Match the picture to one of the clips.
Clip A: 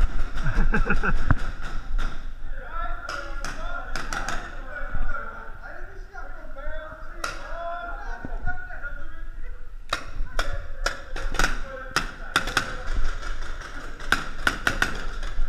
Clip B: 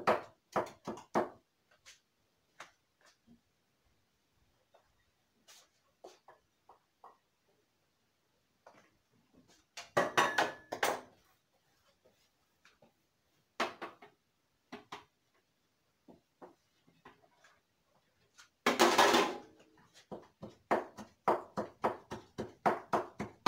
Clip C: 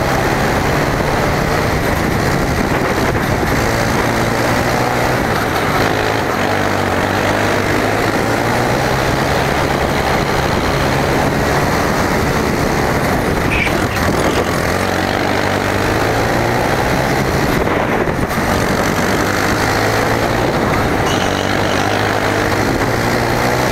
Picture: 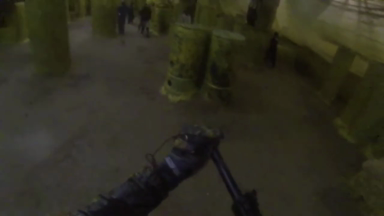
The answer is A